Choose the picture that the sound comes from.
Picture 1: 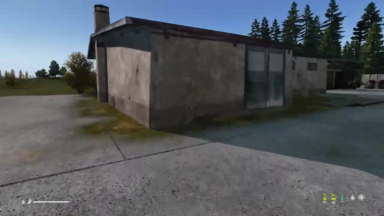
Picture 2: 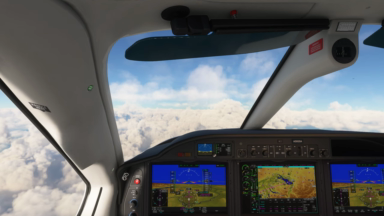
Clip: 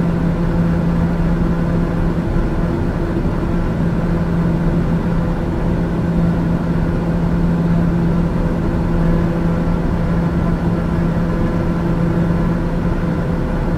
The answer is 2